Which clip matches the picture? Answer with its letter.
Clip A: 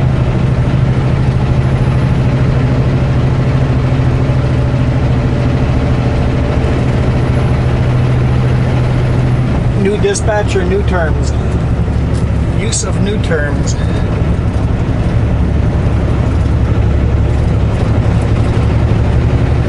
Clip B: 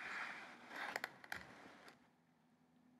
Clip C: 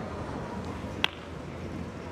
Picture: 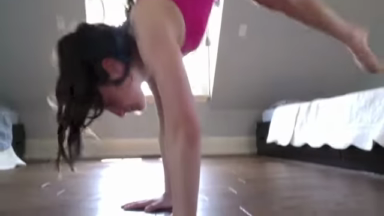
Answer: B